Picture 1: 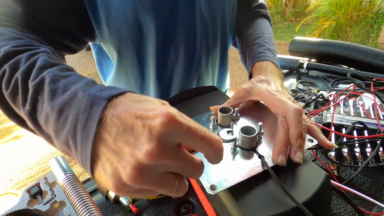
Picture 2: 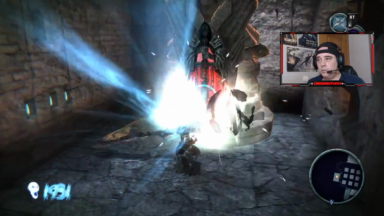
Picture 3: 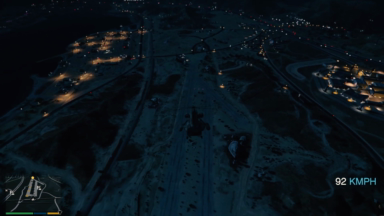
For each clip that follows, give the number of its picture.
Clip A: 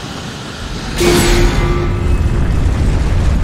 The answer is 2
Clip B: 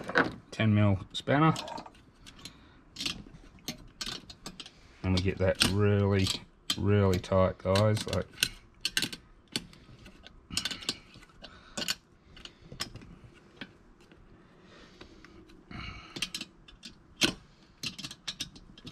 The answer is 1